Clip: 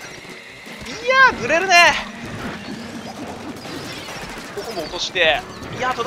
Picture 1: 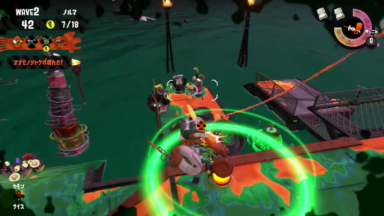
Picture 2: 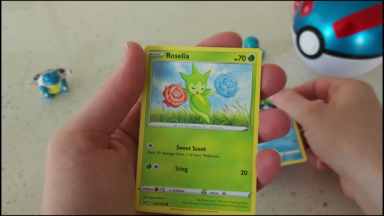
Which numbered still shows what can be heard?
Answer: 1